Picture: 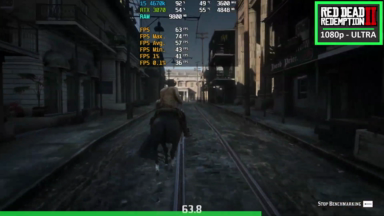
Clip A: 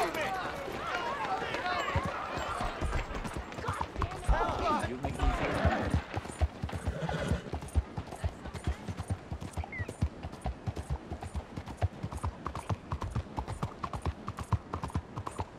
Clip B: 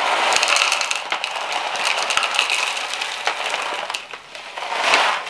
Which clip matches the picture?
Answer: A